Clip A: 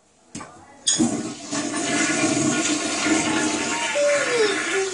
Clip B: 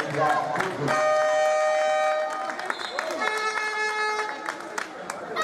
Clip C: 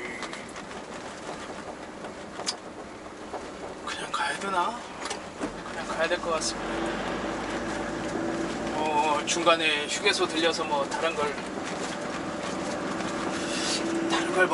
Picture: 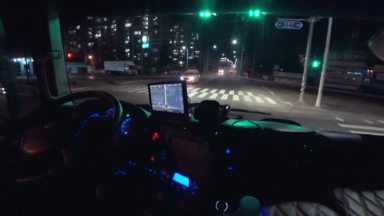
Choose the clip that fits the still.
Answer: C